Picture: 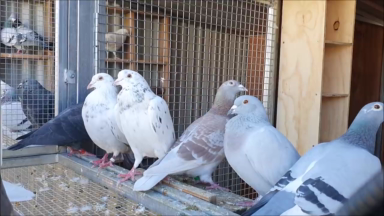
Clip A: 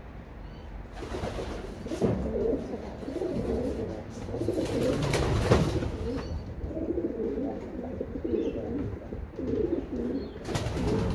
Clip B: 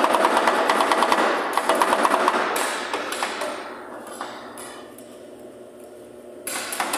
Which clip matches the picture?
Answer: A